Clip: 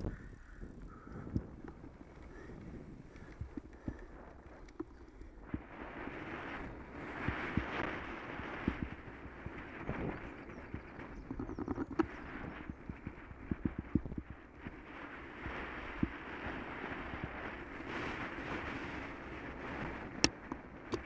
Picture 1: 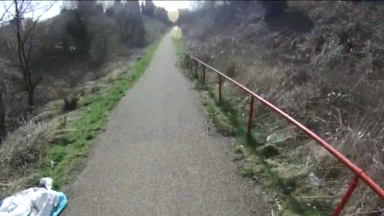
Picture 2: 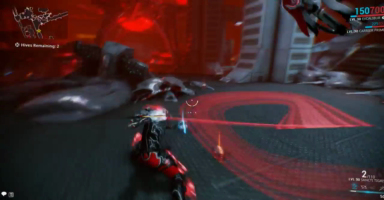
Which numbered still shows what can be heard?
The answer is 1